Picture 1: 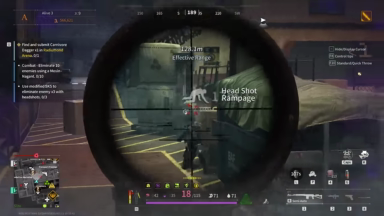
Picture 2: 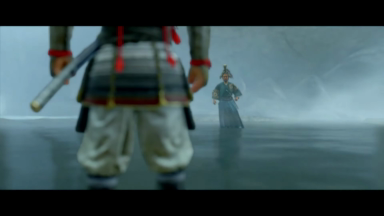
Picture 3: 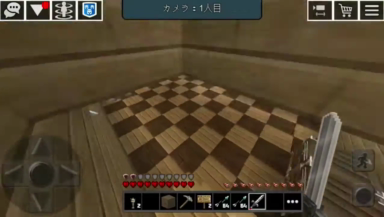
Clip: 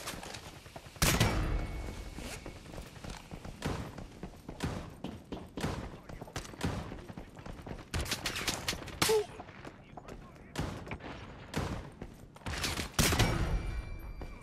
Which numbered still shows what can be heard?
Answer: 1